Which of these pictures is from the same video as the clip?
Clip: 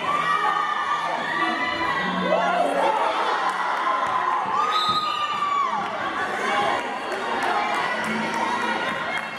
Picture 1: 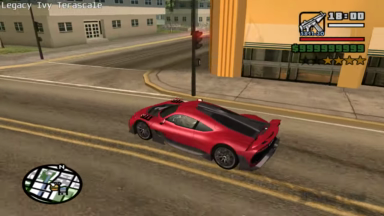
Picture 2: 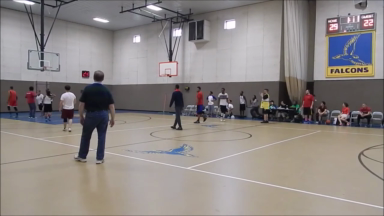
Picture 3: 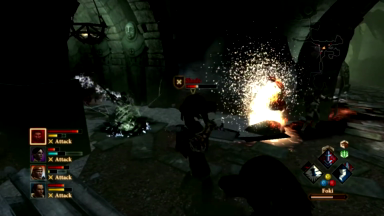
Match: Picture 2